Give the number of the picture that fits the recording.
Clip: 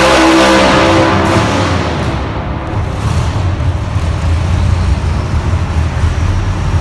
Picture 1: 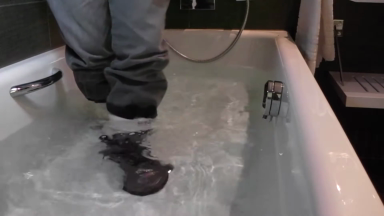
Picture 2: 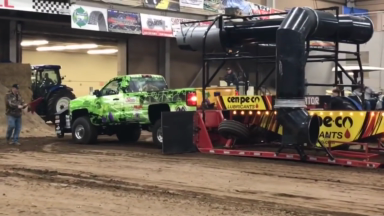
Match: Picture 2